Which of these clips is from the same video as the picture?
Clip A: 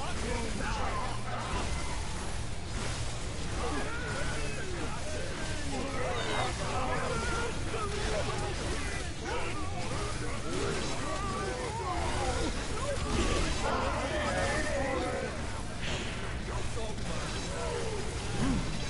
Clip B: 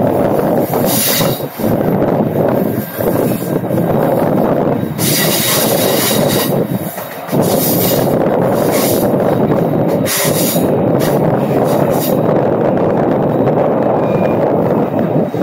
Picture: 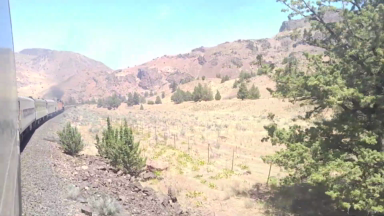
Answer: B